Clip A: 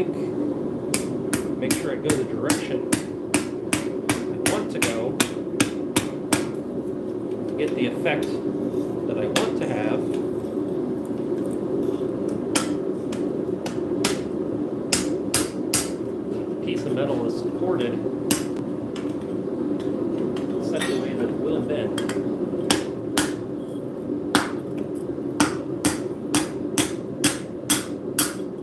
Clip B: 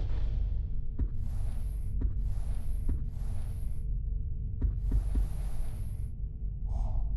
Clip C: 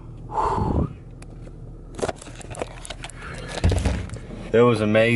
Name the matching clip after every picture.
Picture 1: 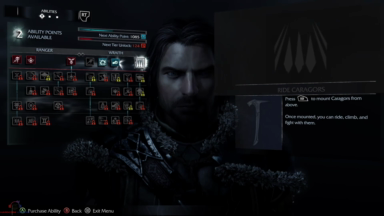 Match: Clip B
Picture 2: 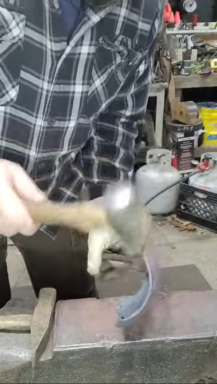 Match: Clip A